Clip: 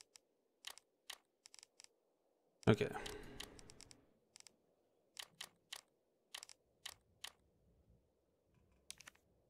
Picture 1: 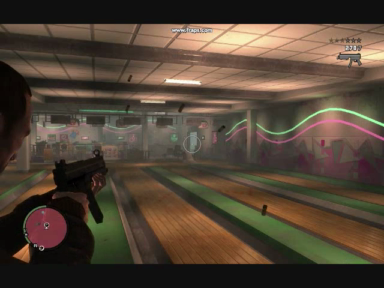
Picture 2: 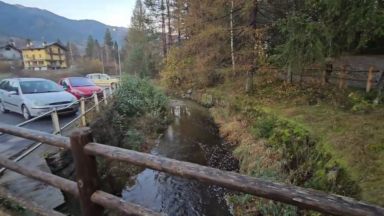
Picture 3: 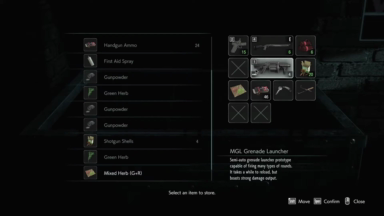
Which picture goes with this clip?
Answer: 3